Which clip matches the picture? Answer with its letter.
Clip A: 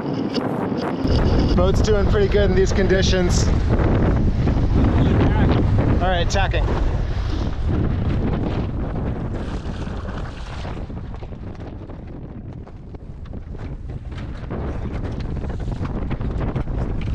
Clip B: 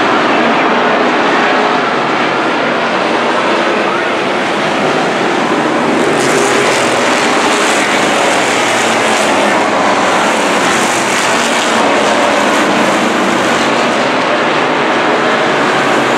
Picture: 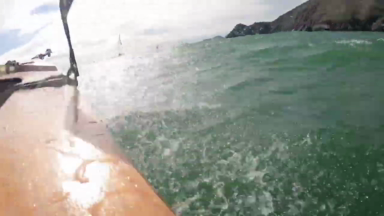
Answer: A